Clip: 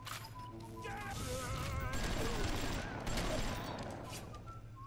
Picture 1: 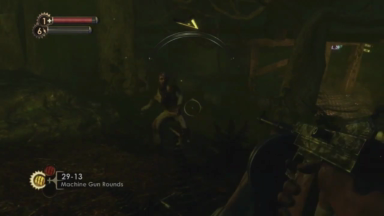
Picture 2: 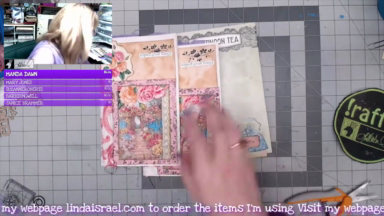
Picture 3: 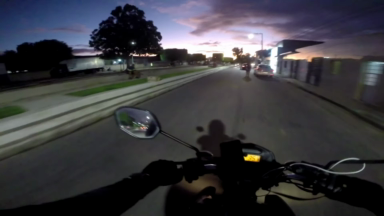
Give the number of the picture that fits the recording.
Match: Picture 1